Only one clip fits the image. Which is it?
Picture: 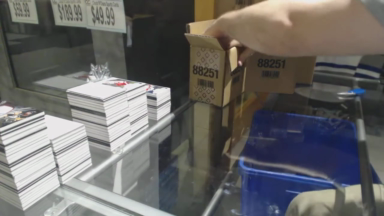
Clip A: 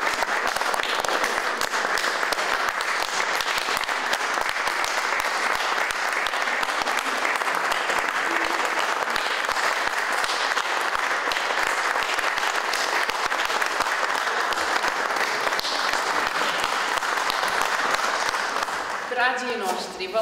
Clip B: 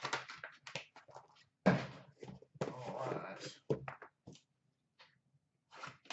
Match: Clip B